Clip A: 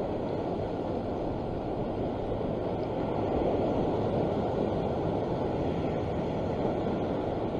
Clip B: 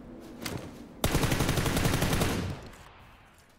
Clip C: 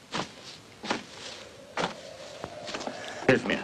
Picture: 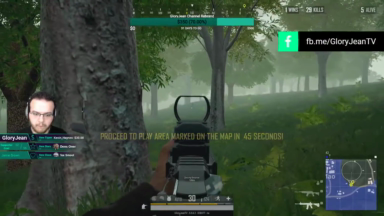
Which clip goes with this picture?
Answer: B